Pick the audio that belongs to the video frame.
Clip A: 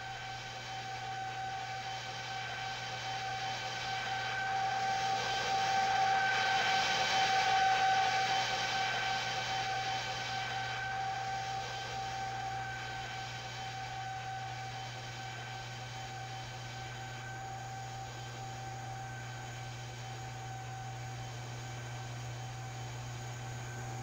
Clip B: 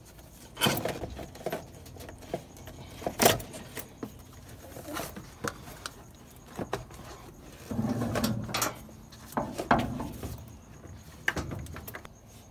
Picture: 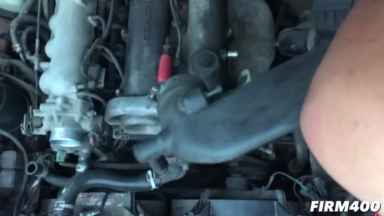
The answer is B